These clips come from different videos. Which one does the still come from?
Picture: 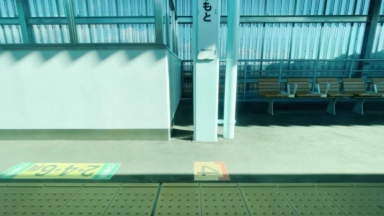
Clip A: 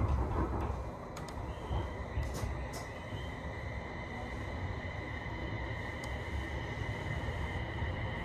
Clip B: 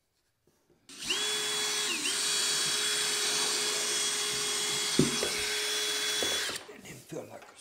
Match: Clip A